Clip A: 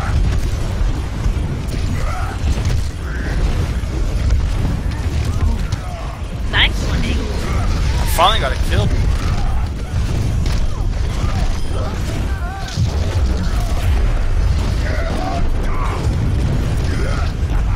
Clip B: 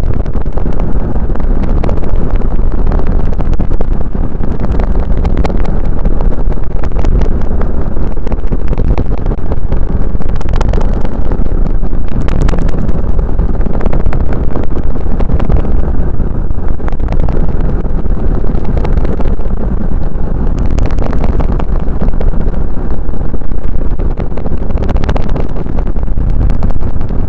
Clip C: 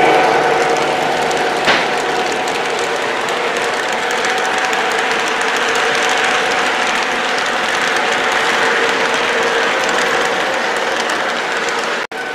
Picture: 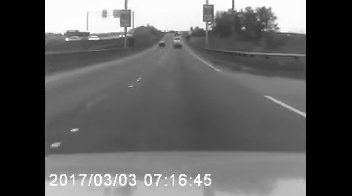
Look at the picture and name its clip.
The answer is B